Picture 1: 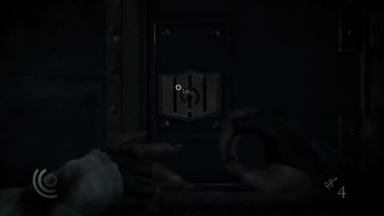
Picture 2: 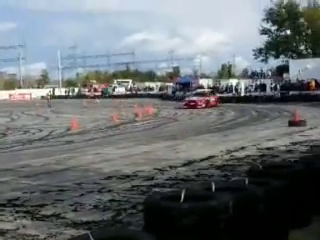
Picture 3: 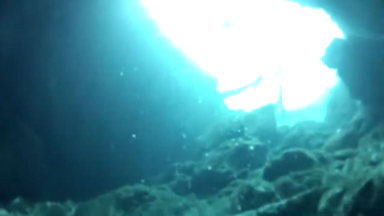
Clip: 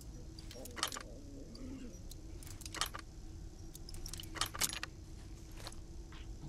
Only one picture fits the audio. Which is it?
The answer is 1